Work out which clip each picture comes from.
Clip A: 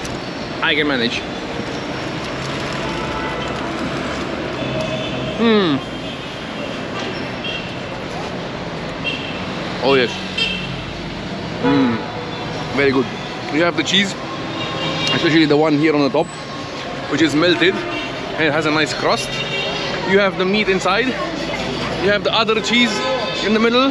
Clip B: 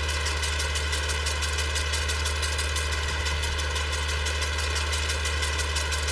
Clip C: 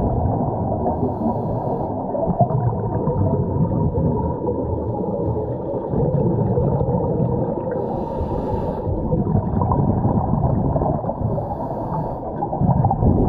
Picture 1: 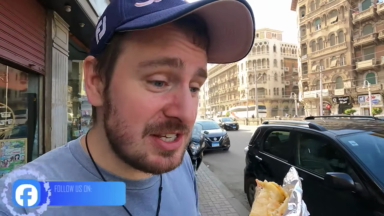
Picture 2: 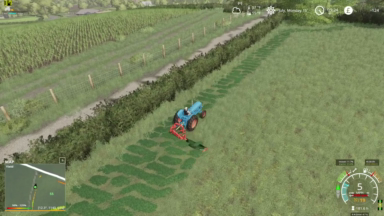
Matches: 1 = A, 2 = B